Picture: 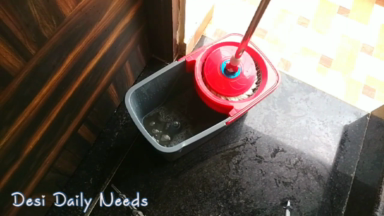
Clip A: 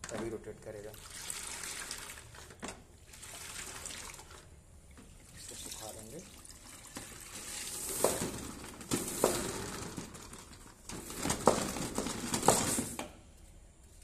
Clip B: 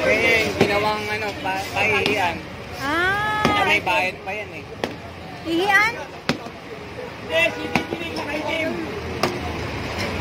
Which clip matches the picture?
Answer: A